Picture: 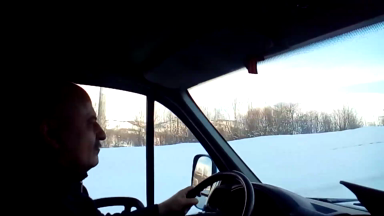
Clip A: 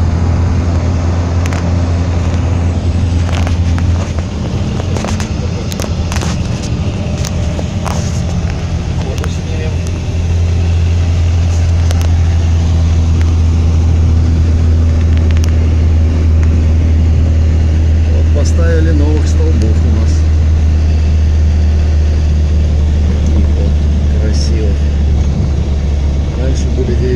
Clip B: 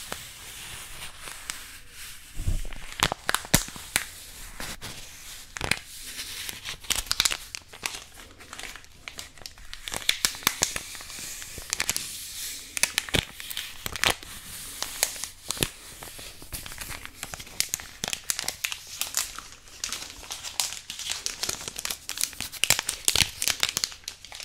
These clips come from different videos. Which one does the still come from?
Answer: A